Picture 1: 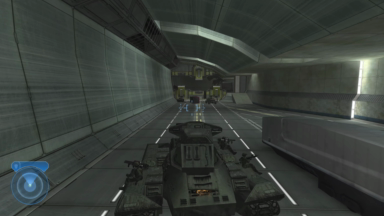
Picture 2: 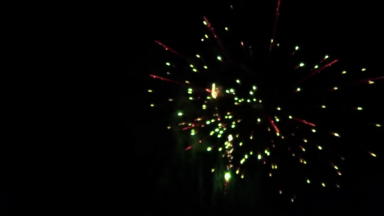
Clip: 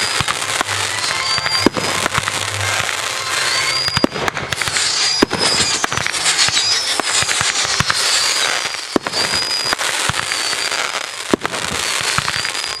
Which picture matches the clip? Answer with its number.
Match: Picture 2